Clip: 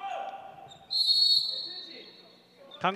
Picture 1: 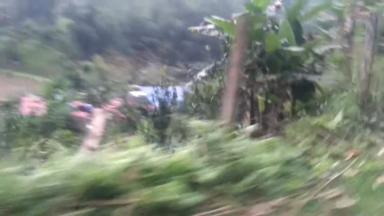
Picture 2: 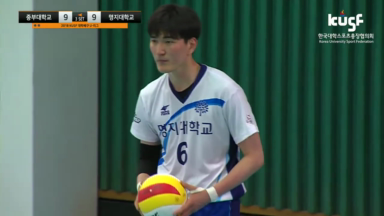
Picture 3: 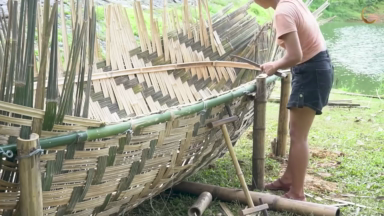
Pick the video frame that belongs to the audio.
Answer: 2